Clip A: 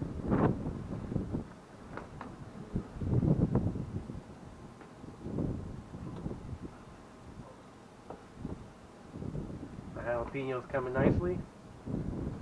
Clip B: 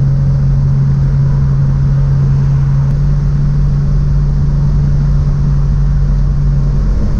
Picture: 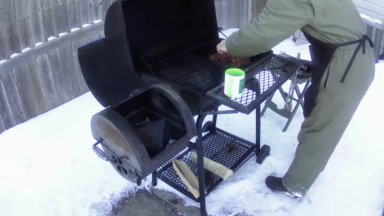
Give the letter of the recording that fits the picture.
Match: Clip A